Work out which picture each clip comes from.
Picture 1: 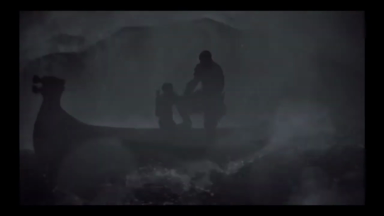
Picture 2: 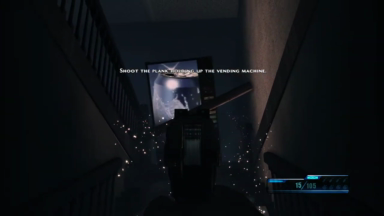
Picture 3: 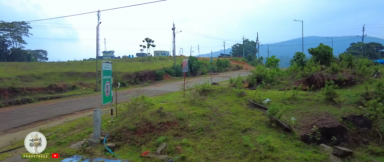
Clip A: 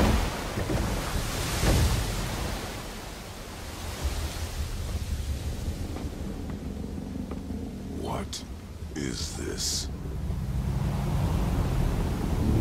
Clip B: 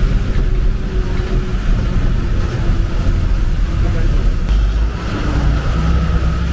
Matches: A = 1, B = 3